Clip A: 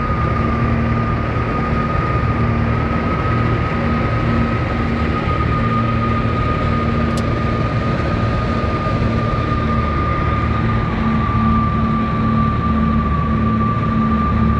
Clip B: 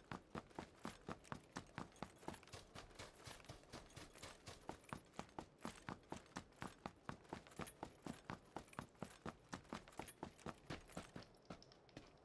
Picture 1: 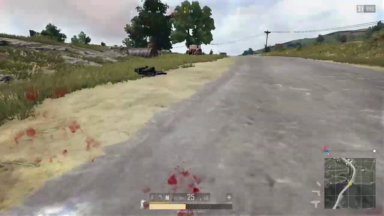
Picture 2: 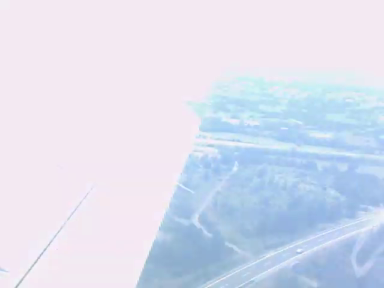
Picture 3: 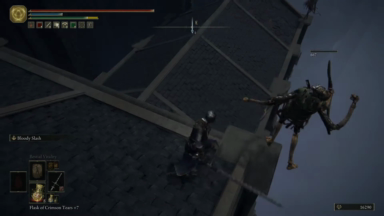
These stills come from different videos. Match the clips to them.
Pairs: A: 2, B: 1